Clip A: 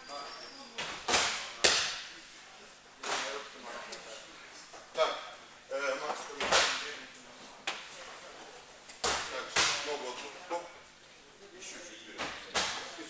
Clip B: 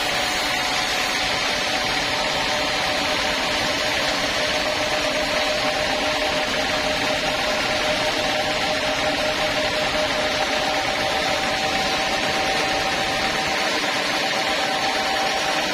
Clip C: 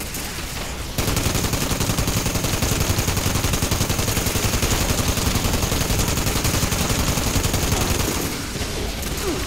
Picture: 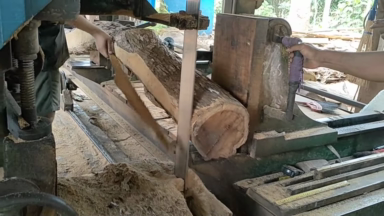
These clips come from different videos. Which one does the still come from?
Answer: B